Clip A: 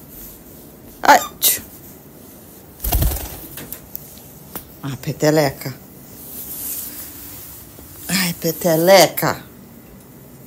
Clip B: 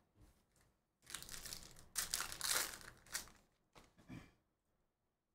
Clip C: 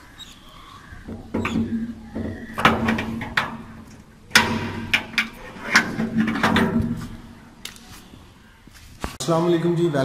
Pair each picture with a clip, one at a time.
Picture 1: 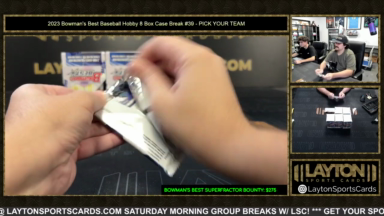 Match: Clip B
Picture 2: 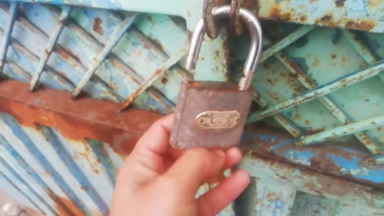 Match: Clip C